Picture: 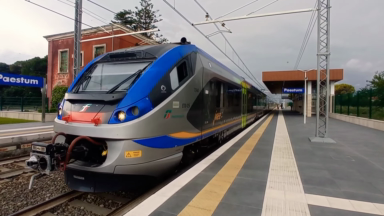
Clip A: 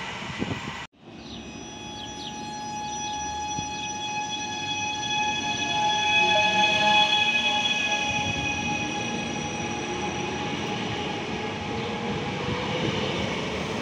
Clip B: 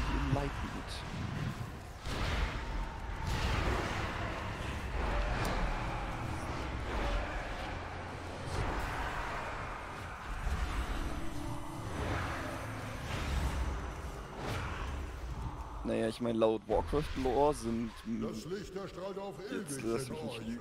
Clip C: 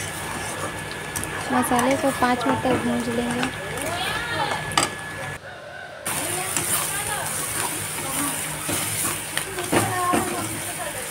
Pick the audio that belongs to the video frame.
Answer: A